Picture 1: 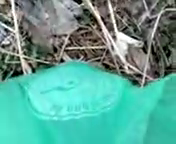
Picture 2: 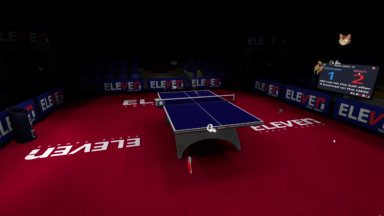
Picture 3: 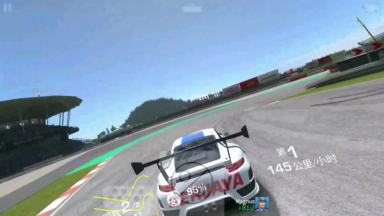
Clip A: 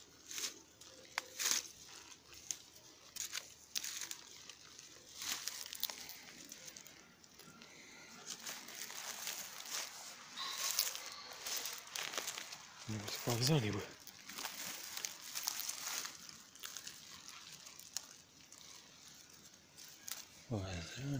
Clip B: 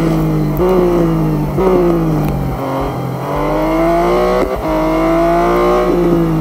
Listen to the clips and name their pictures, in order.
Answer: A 1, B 3